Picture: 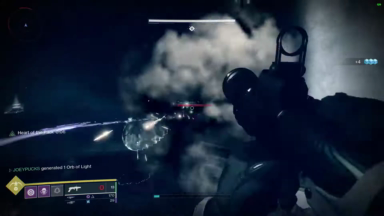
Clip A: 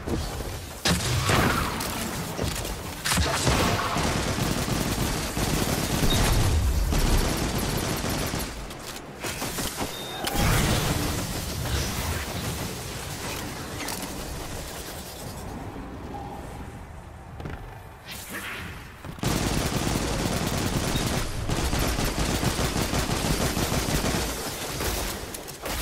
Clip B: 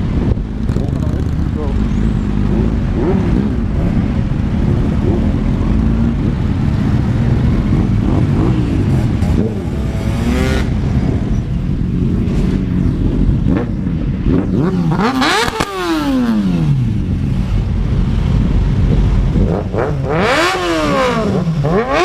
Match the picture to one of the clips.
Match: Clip A